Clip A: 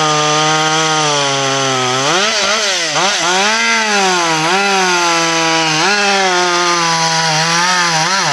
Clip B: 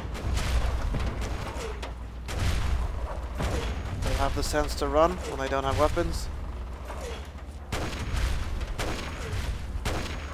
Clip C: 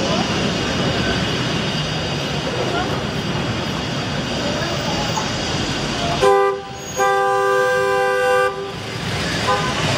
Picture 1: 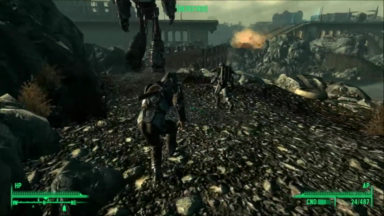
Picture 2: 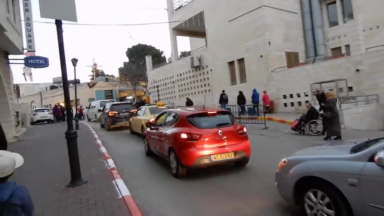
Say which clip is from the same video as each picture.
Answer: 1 B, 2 C